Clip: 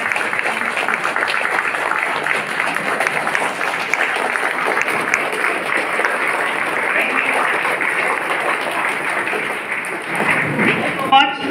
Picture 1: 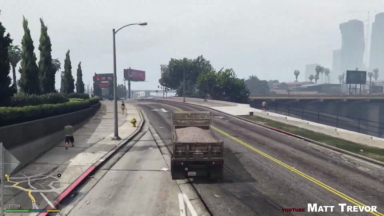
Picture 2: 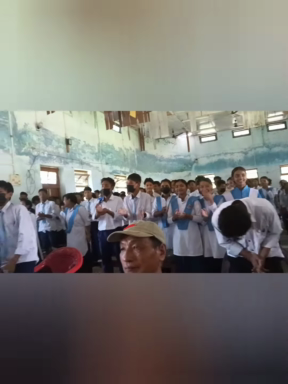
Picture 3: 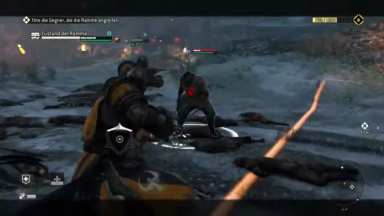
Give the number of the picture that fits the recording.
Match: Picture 2